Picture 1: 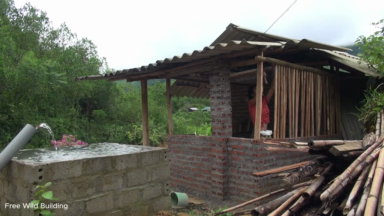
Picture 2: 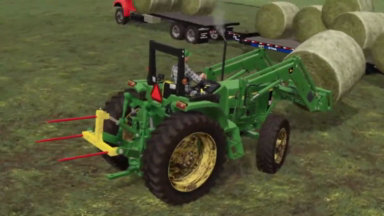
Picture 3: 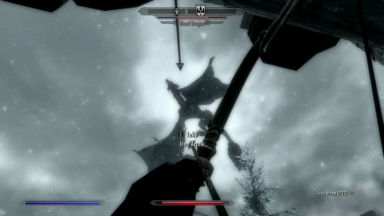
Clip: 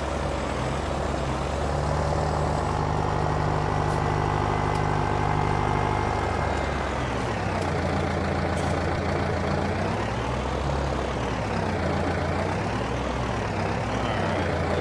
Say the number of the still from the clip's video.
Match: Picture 2